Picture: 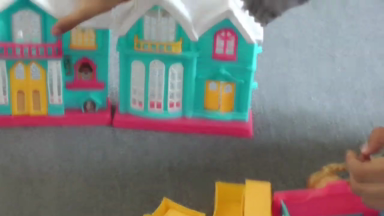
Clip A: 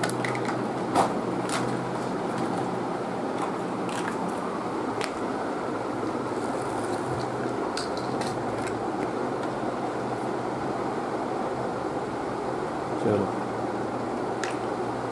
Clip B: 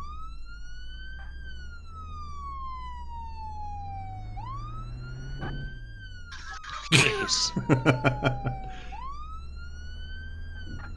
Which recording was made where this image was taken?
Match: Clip A